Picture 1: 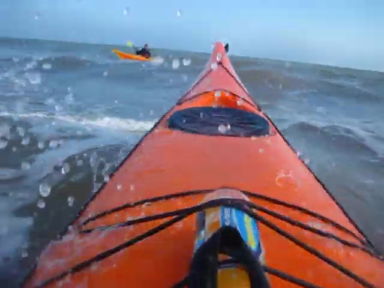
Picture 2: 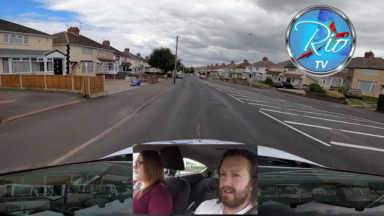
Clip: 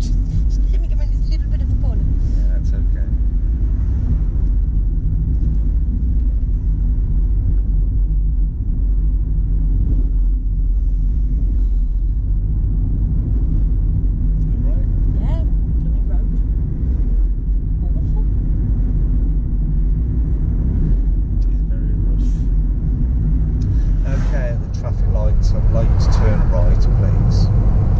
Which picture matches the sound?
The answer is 2